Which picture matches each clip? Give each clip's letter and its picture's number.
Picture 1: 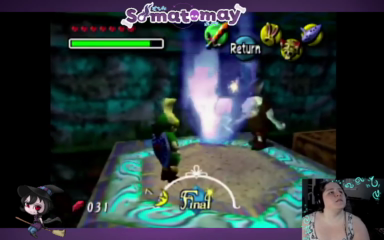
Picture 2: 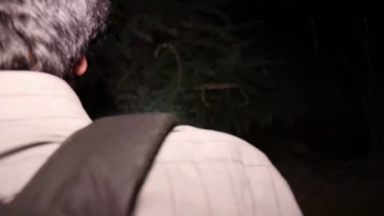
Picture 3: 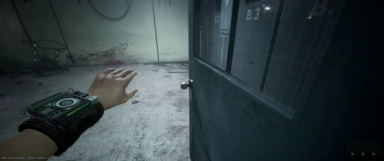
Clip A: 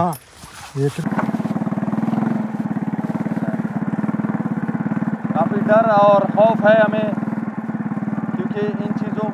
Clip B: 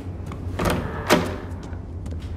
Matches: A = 2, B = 3